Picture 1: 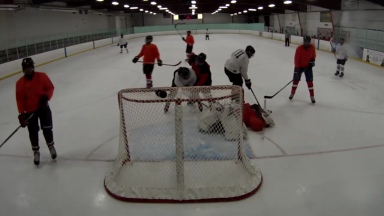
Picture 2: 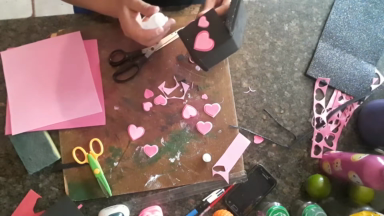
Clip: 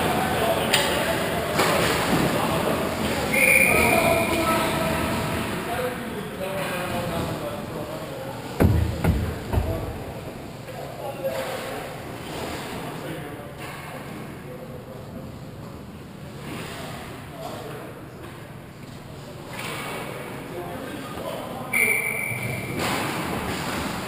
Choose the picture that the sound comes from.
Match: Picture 1